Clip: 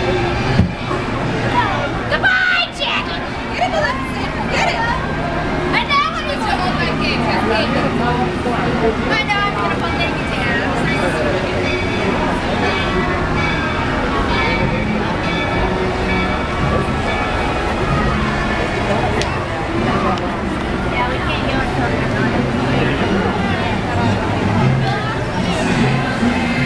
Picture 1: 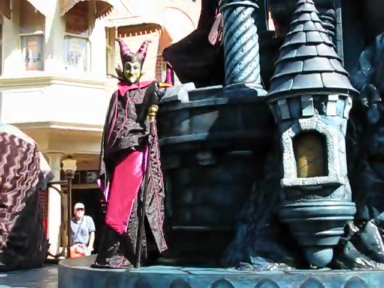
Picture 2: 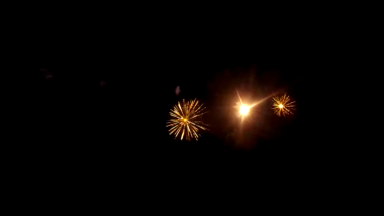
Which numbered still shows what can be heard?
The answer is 1